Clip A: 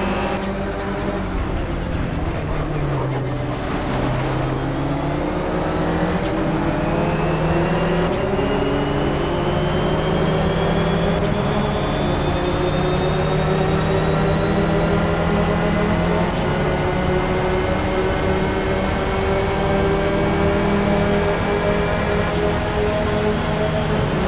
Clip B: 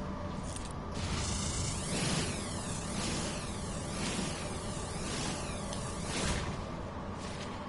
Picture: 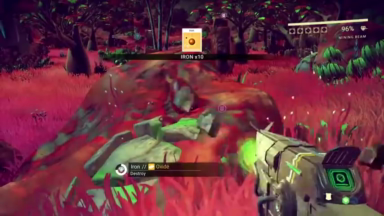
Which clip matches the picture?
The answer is B